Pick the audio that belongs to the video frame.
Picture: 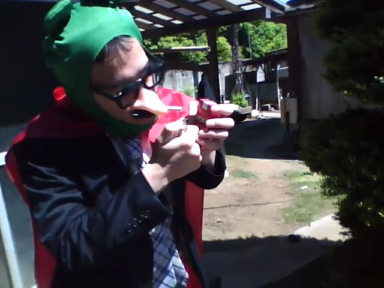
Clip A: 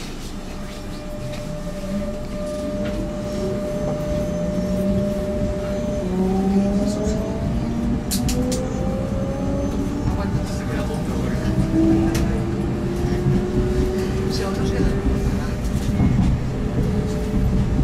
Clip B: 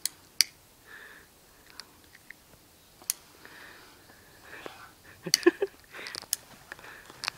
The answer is B